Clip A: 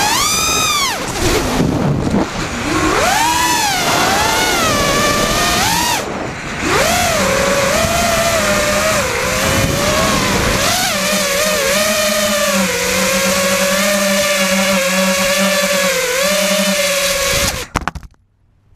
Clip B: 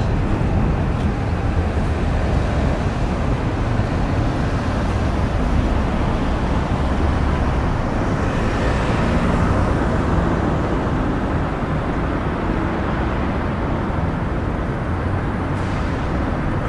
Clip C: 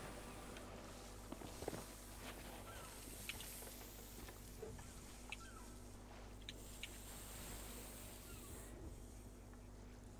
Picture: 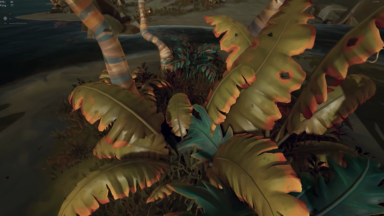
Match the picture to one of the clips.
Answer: C